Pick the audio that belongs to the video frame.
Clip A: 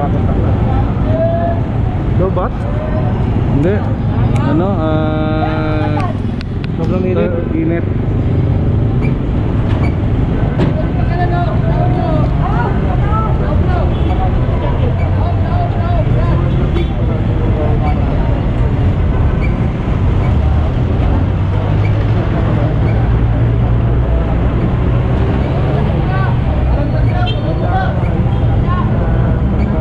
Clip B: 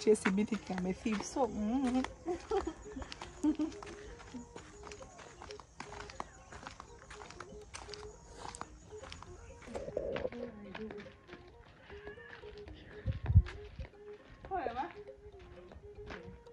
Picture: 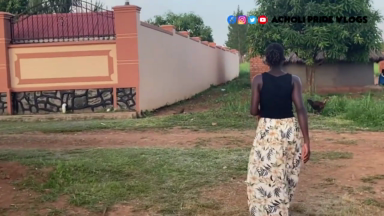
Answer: B